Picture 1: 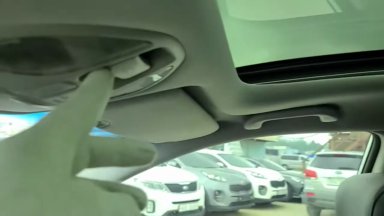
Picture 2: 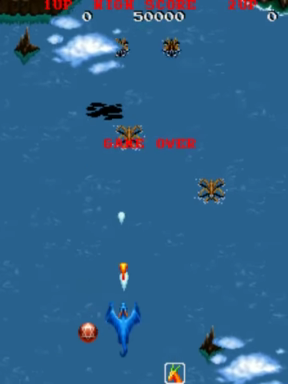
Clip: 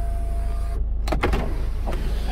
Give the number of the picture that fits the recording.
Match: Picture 1